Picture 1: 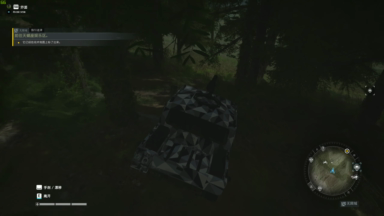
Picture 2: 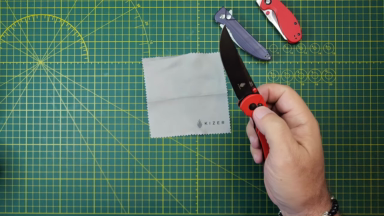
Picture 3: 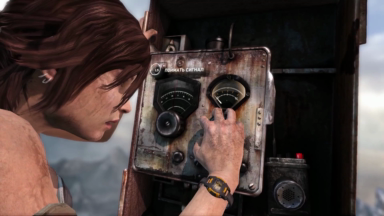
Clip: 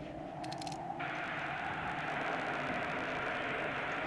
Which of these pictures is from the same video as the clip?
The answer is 3